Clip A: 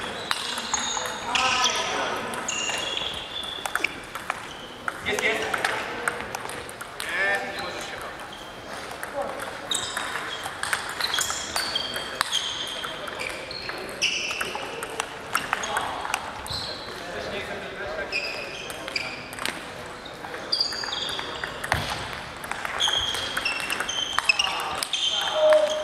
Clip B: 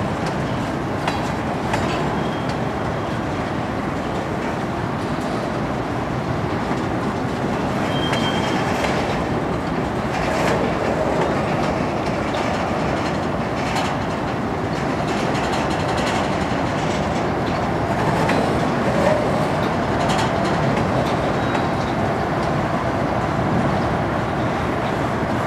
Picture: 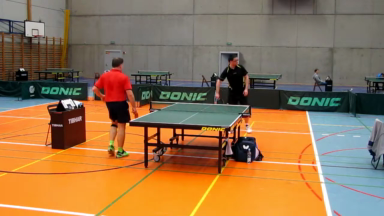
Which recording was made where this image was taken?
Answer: A